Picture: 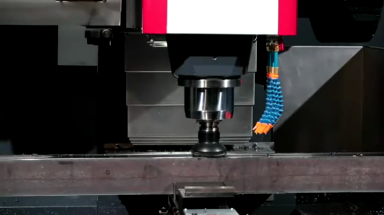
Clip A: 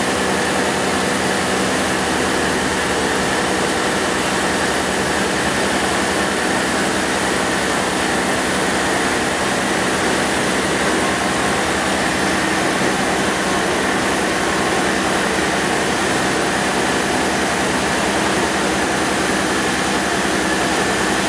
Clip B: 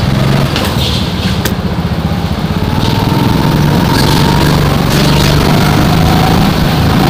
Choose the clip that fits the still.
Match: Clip A